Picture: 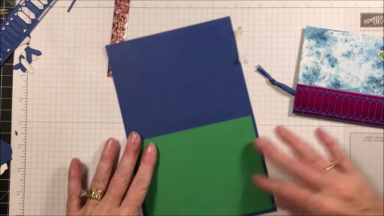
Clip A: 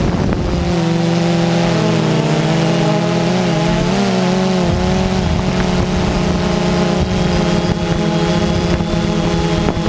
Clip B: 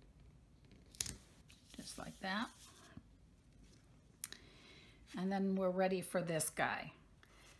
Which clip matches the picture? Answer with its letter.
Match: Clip B